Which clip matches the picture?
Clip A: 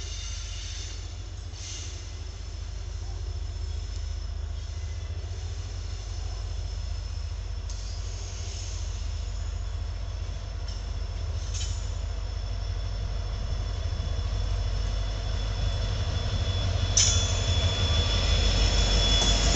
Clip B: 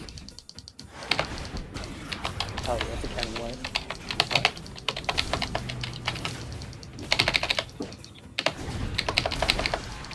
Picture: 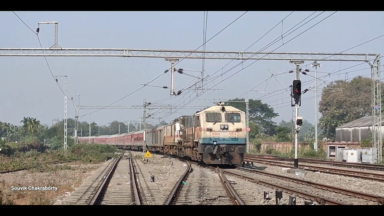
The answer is A